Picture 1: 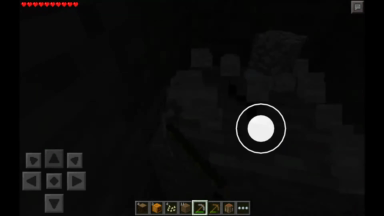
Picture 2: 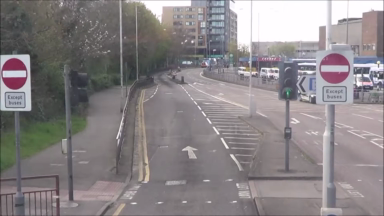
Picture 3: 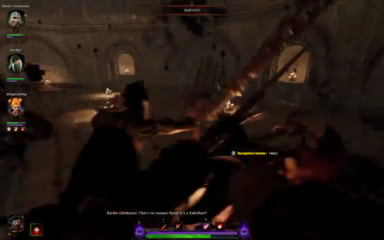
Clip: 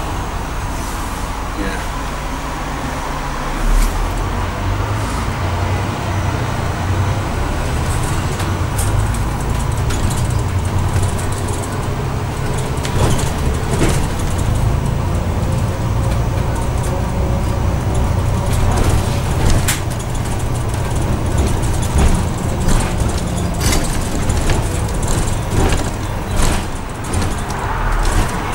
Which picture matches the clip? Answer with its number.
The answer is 2